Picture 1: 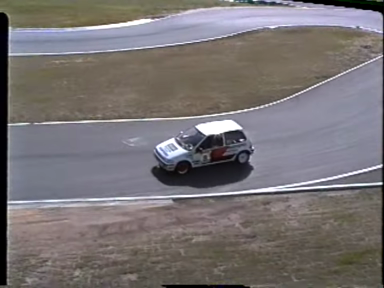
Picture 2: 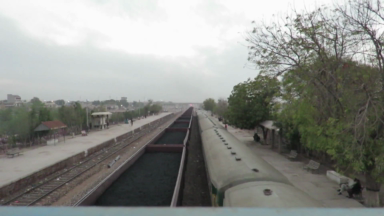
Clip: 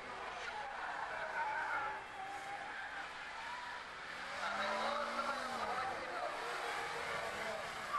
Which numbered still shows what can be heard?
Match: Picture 1